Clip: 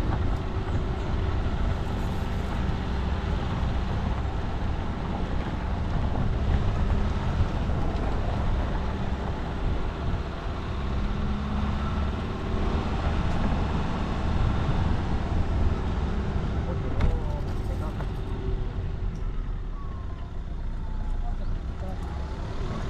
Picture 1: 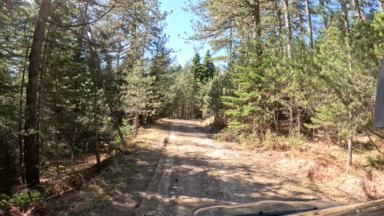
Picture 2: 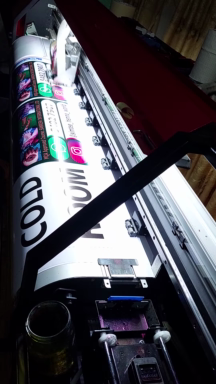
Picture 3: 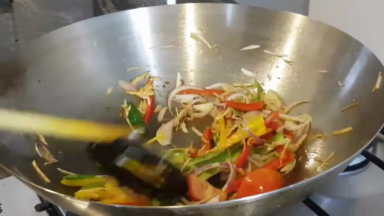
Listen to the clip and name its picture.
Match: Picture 1